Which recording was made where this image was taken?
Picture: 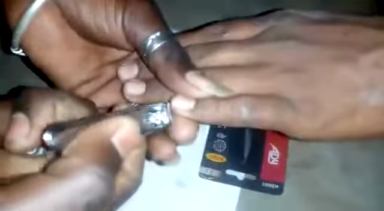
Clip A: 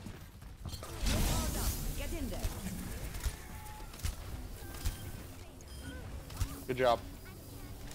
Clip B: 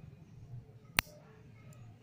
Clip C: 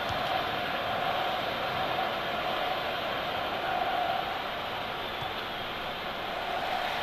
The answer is B